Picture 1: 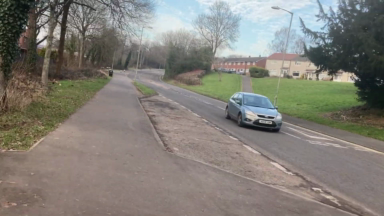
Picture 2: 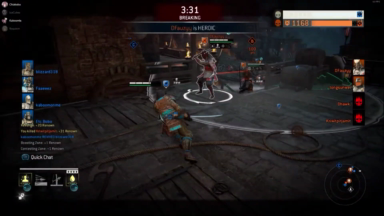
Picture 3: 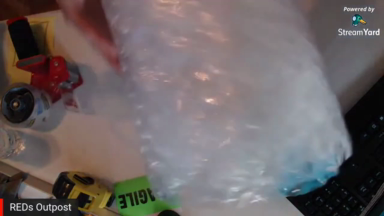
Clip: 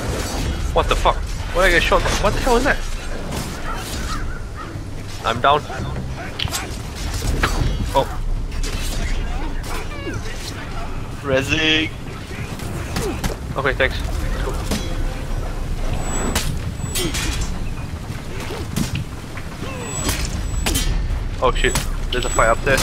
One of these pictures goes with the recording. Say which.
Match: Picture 2